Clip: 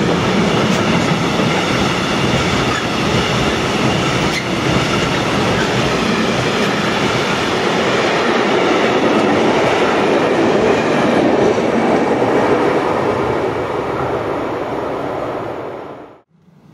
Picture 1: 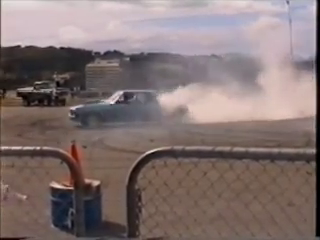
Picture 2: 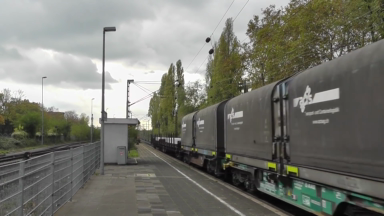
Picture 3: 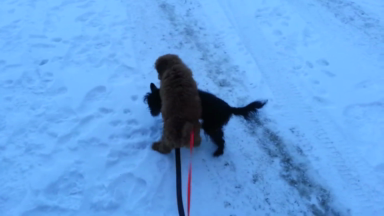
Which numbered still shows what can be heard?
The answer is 2